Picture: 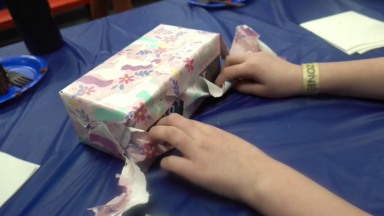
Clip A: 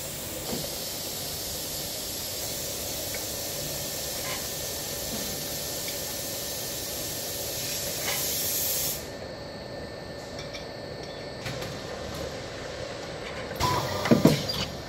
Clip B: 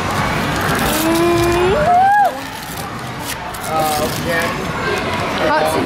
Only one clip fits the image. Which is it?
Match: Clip B